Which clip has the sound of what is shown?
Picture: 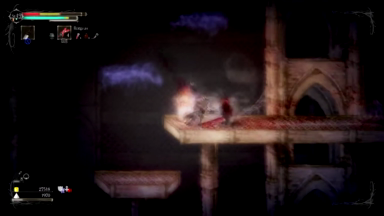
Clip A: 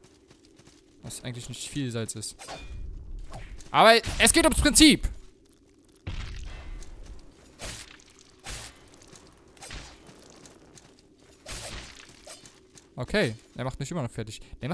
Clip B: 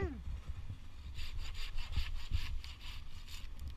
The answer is A